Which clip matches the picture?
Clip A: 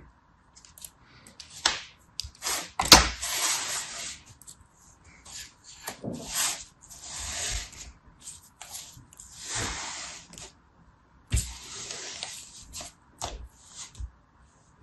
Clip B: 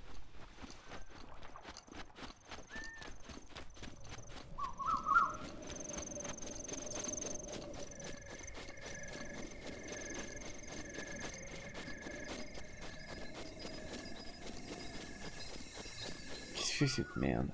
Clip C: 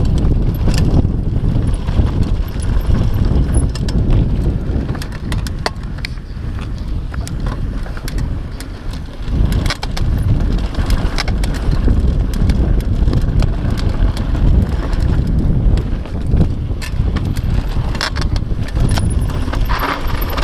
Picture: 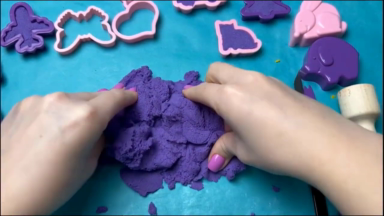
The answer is A